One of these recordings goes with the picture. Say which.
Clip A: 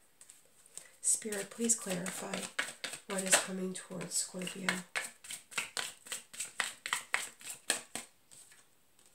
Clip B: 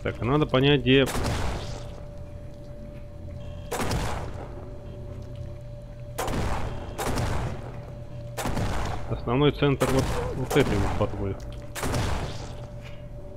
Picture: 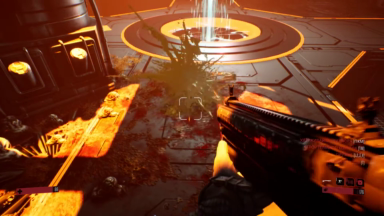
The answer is B